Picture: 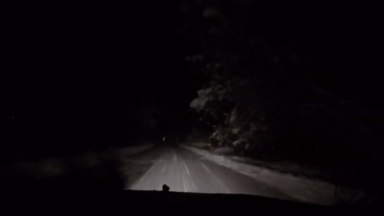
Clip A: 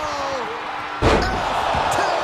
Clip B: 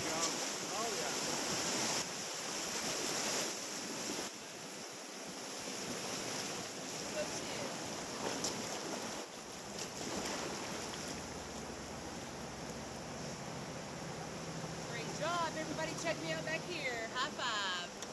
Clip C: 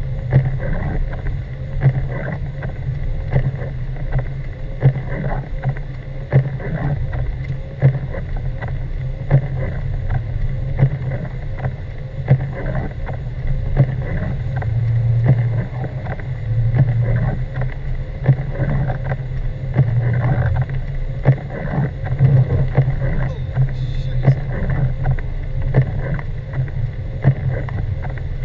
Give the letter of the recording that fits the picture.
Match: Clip C